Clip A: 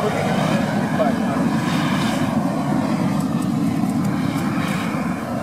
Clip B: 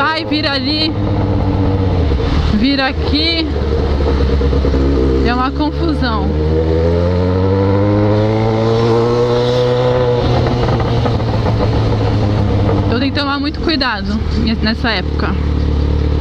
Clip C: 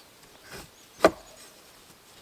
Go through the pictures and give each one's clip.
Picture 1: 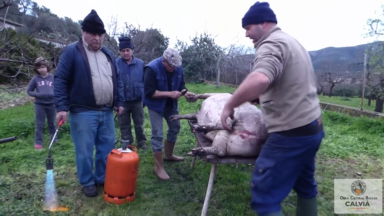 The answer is A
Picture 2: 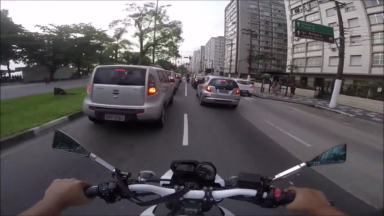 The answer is B